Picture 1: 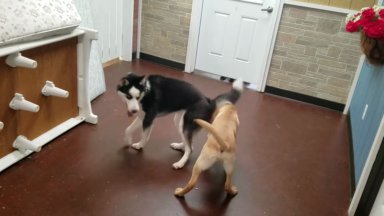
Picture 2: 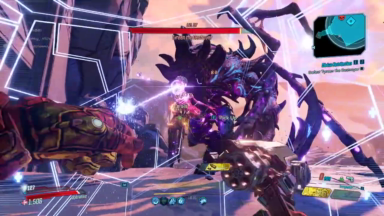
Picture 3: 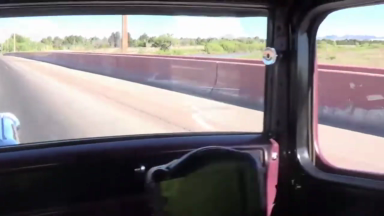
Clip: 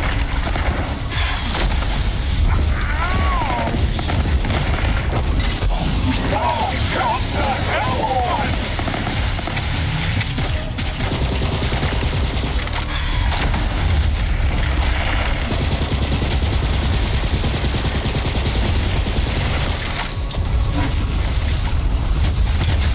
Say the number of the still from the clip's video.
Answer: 2